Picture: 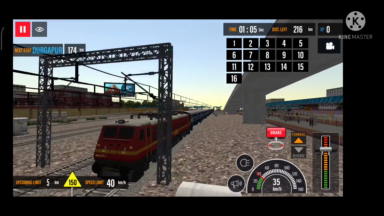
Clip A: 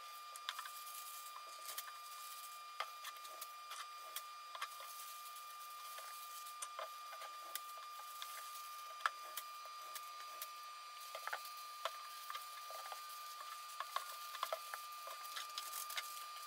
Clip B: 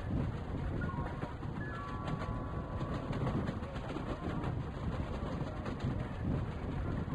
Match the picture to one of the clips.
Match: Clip B